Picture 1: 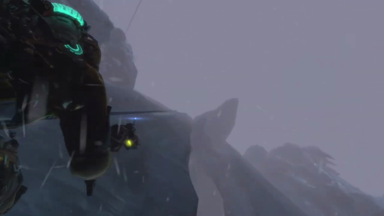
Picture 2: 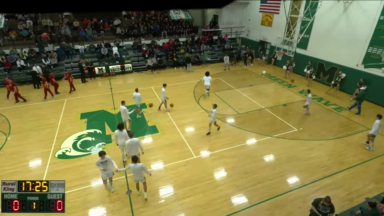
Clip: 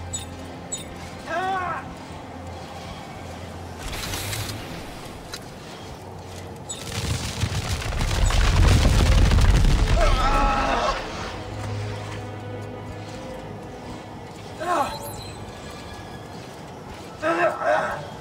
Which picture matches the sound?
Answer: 1